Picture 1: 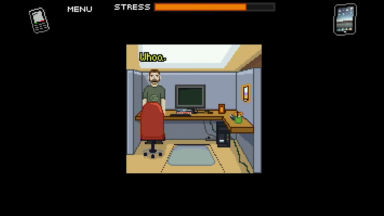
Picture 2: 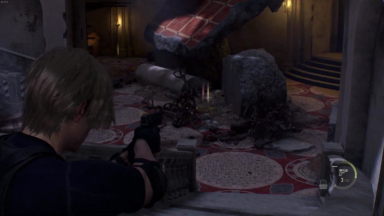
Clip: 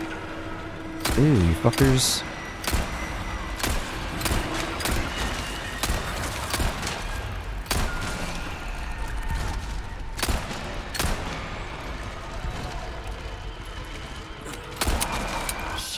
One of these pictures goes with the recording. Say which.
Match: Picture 2